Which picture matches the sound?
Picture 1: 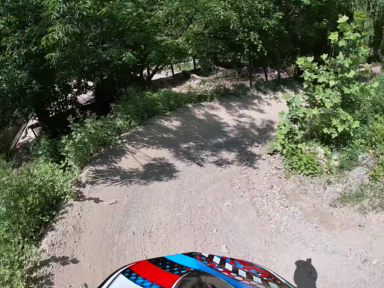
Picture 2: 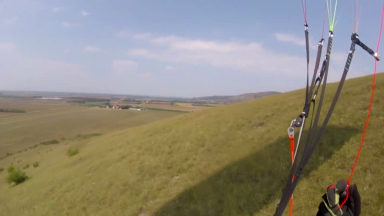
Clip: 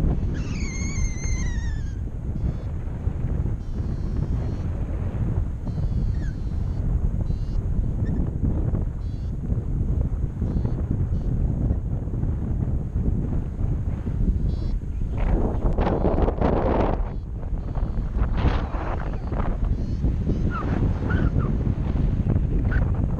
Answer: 2